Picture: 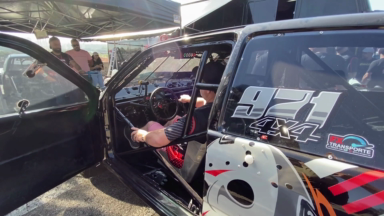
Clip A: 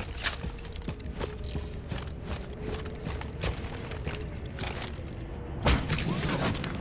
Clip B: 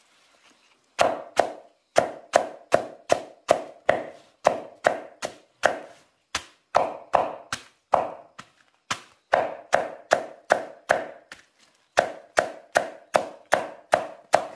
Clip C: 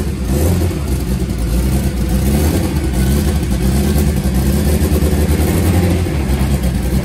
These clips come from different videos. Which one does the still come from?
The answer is C